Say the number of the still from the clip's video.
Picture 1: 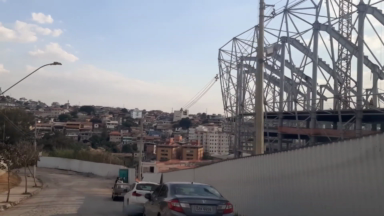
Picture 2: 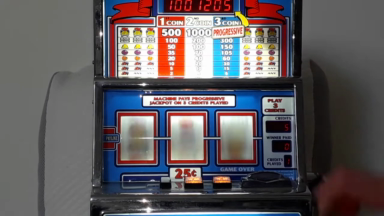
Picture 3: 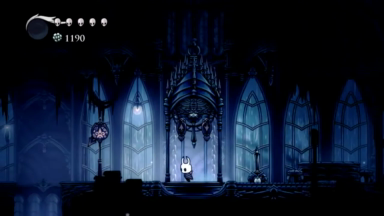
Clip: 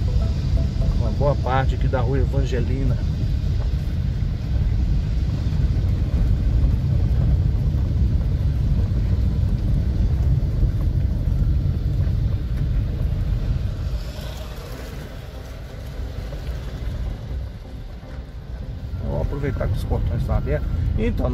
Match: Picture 1